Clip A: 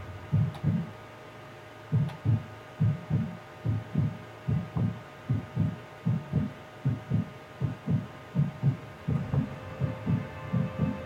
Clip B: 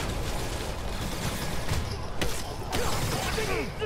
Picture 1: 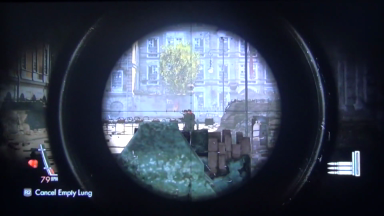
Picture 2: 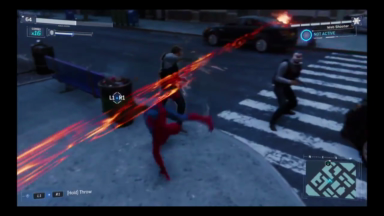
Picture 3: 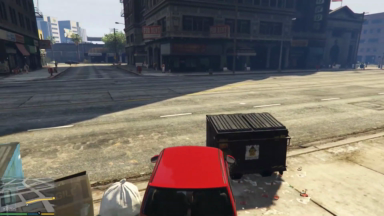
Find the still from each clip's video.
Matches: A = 1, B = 2